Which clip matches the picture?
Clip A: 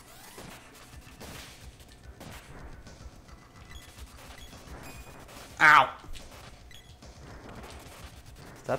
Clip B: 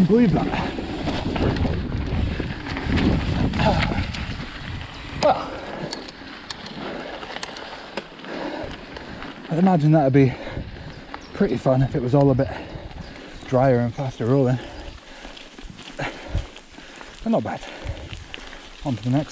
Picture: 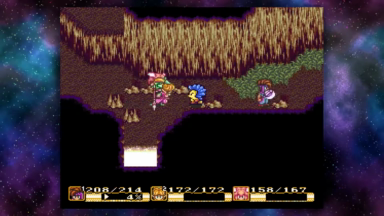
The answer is A